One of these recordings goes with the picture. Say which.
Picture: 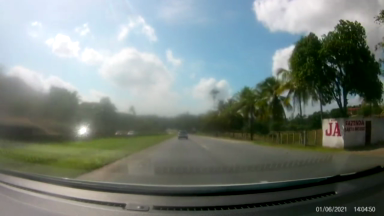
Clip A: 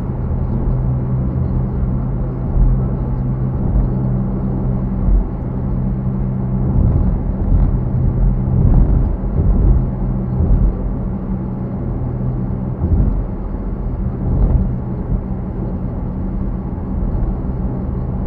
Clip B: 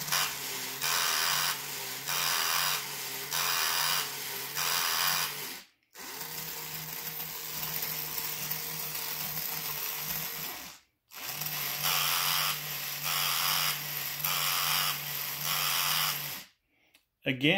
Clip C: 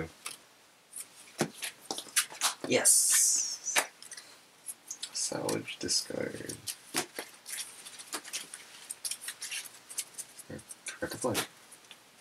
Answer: A